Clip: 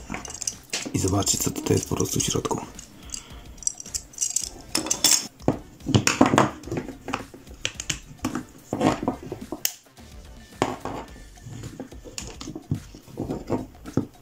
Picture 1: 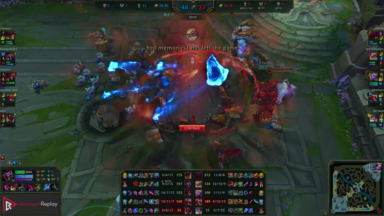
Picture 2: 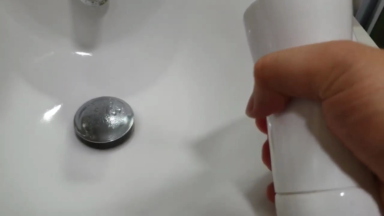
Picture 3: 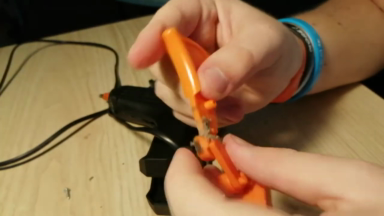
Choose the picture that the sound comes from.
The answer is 3